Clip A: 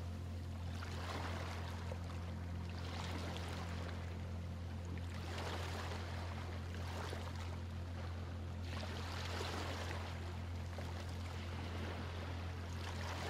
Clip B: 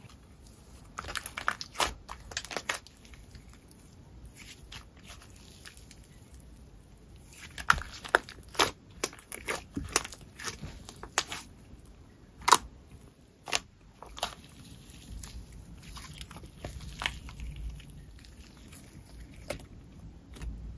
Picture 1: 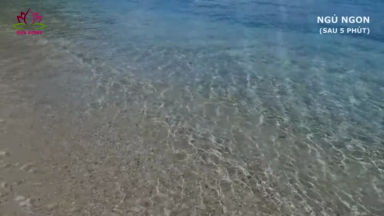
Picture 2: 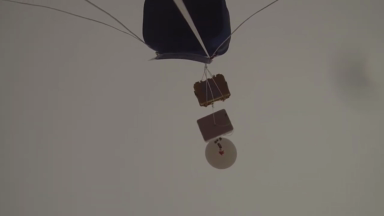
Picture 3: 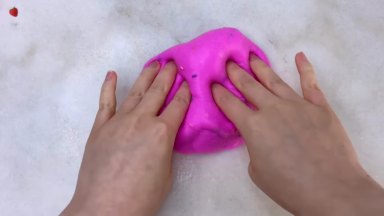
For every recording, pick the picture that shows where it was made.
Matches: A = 1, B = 3